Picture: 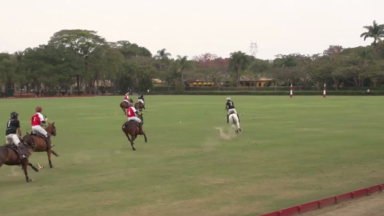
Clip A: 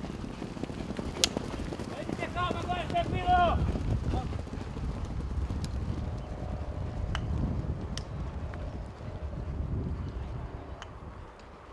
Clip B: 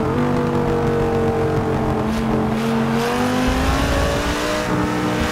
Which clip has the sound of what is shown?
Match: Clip A